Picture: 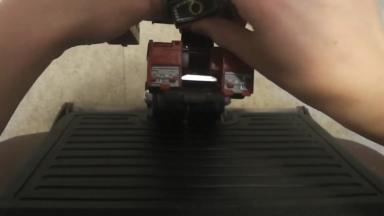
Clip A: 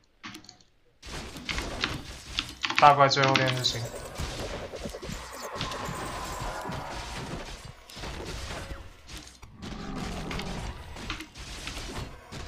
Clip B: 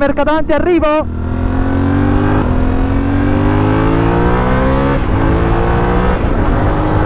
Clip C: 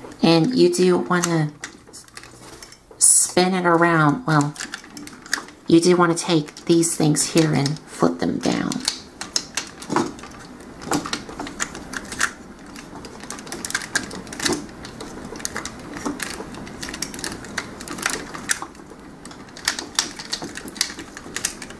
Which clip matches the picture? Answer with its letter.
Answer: C